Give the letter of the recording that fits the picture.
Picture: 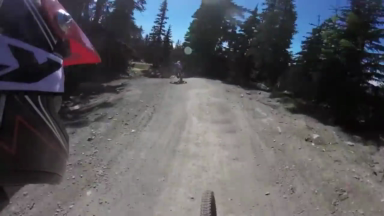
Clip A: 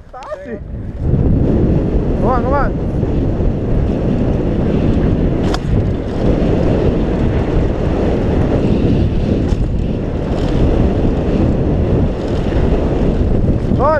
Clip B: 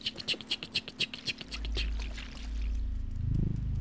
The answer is A